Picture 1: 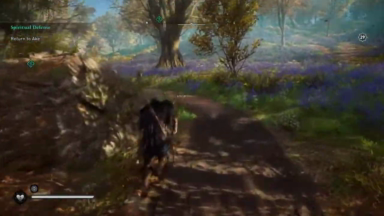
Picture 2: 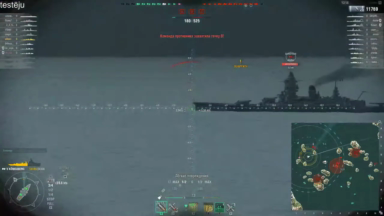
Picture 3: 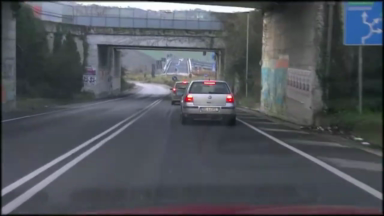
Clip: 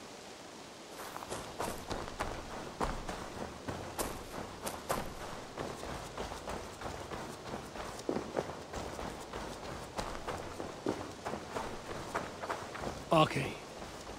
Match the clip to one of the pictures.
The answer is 1